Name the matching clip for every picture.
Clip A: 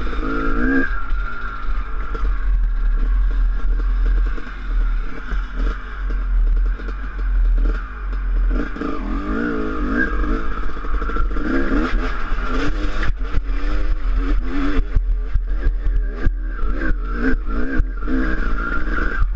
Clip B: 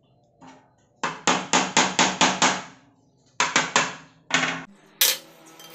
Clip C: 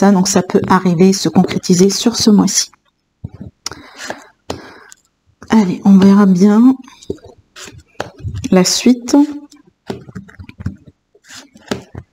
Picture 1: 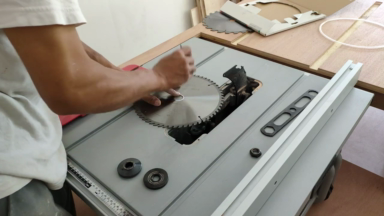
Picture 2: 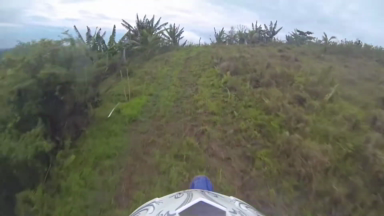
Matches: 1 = B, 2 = A